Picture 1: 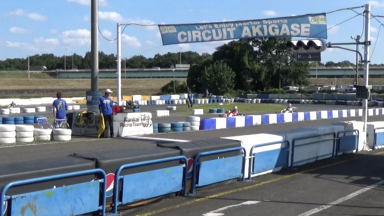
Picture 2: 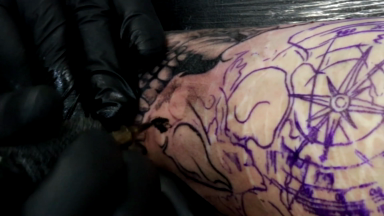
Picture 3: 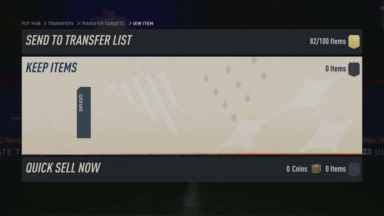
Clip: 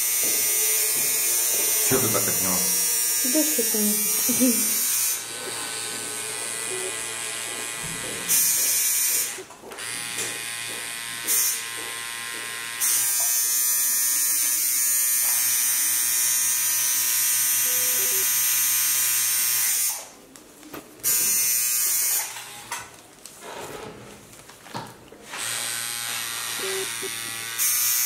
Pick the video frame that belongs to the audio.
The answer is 2